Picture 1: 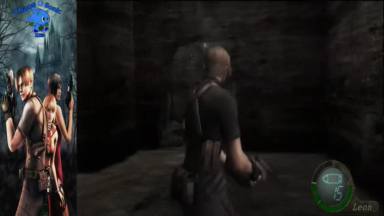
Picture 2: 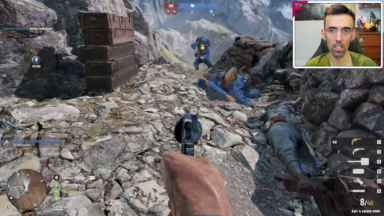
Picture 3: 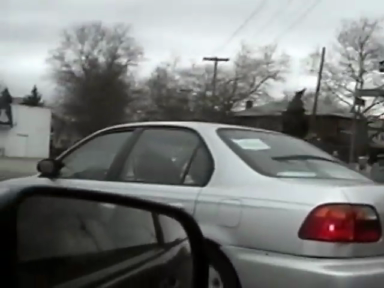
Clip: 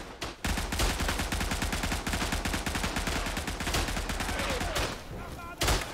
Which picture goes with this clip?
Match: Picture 2